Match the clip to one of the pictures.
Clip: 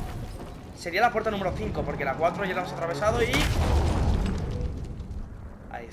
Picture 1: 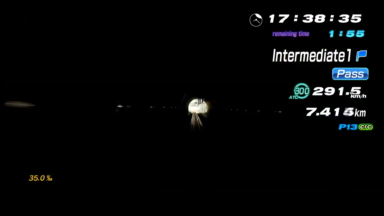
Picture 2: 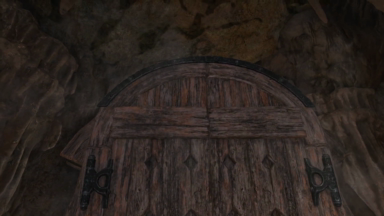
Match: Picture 2